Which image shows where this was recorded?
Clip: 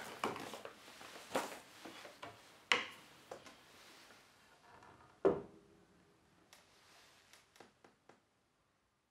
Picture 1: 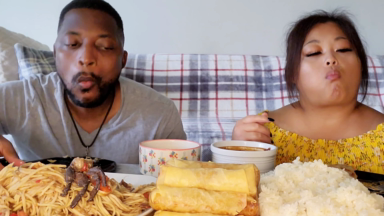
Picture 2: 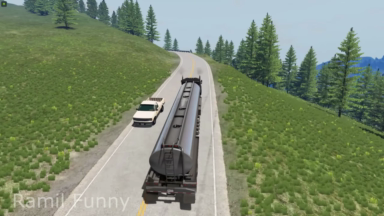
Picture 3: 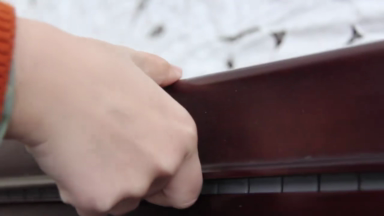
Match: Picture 3